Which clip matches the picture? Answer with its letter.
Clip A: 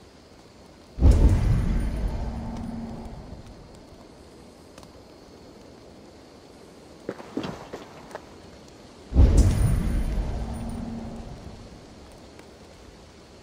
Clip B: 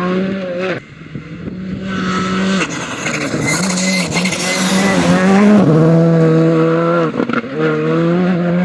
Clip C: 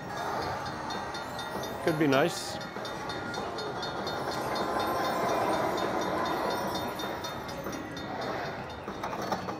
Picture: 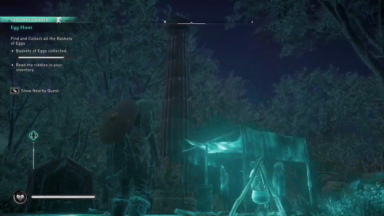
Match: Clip A